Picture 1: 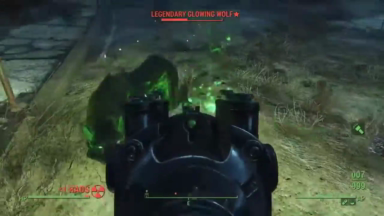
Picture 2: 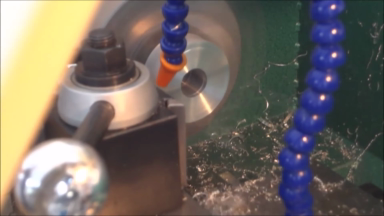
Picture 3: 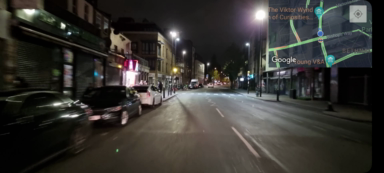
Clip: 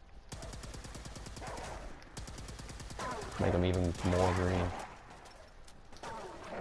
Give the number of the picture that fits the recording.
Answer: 1